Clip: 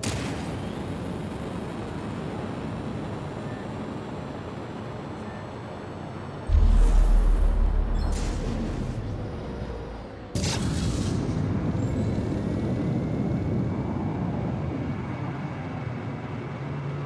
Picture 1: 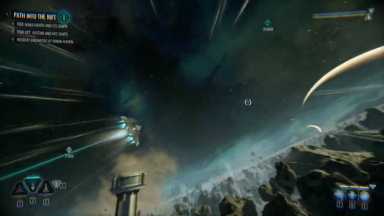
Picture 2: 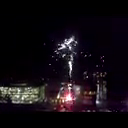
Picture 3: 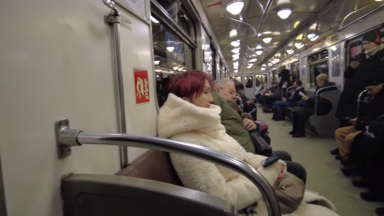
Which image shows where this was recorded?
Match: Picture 1